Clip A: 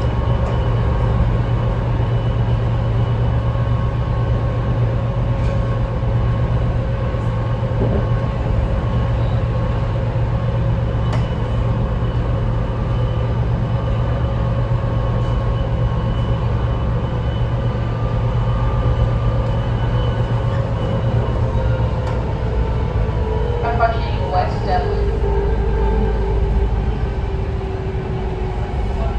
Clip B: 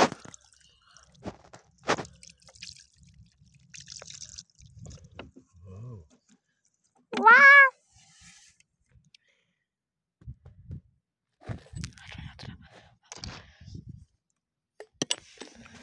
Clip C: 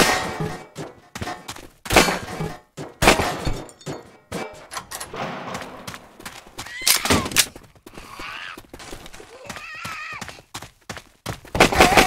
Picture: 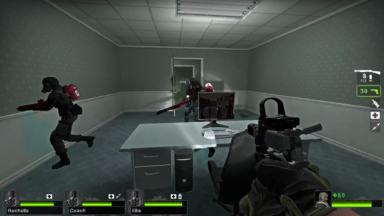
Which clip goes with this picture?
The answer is C